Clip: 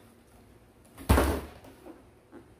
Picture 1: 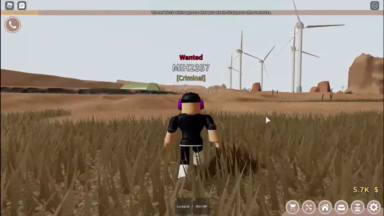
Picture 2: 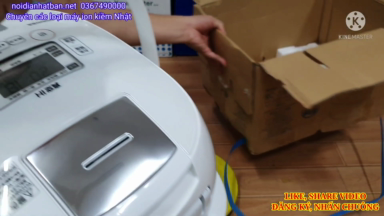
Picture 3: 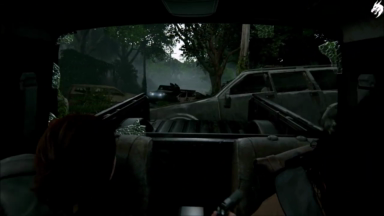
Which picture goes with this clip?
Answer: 2